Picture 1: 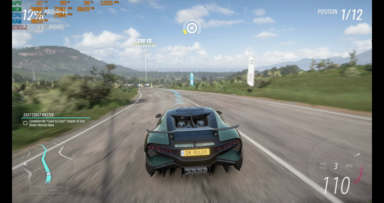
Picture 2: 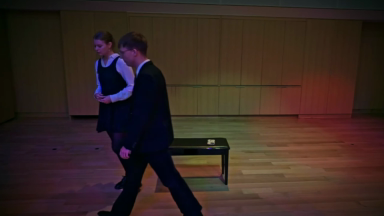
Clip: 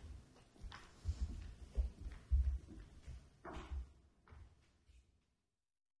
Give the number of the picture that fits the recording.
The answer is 2